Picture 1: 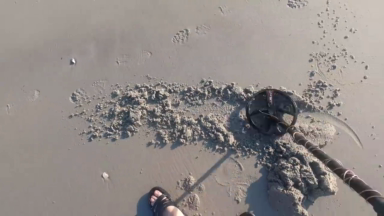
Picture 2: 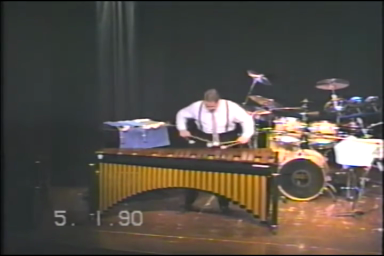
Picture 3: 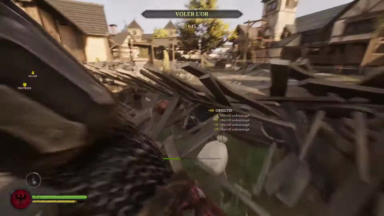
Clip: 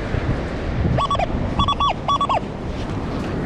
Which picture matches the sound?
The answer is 1